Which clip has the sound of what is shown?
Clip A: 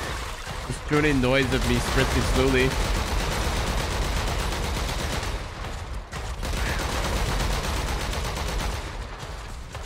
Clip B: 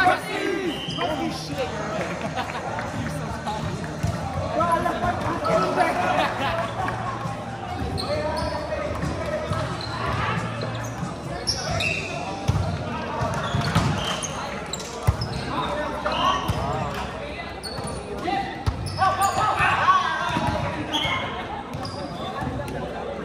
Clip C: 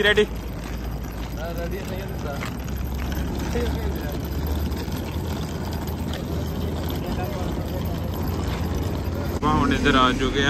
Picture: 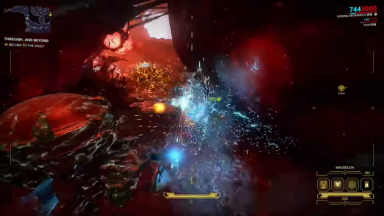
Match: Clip A